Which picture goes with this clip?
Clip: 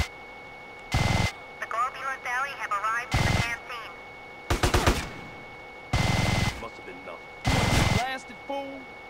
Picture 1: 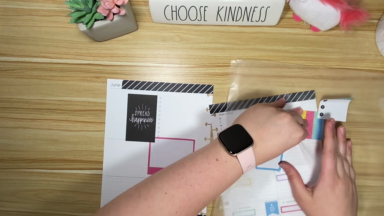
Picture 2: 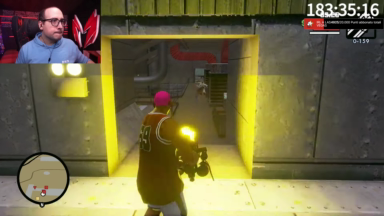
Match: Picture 2